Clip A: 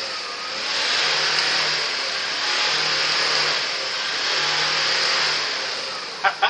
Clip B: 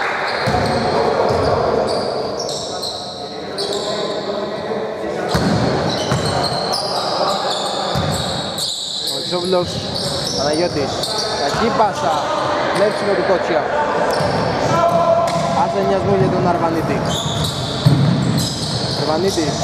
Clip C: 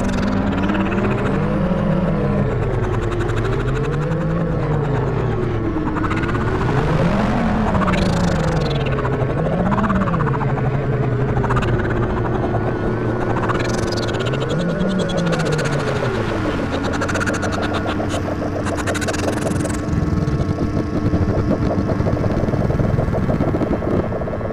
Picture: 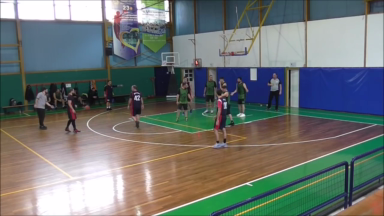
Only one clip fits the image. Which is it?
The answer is B